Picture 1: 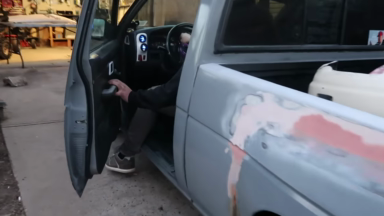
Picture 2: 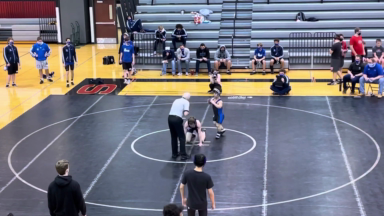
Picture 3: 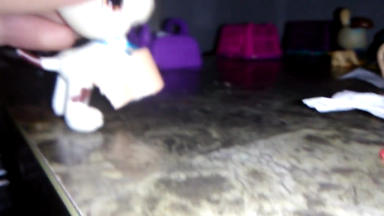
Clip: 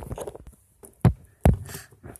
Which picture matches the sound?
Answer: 3